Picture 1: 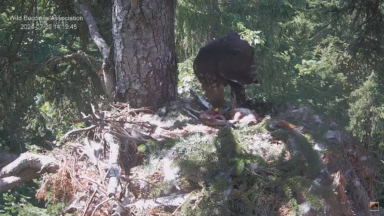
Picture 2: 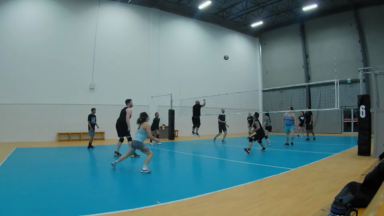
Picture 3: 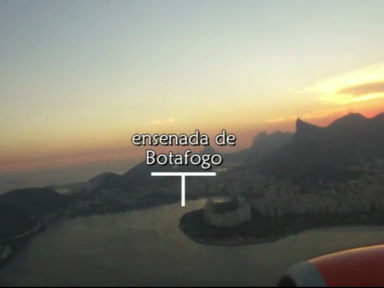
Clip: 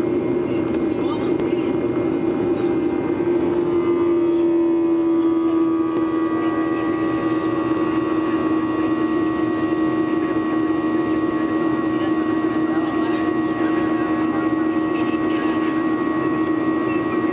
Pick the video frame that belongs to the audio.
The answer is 3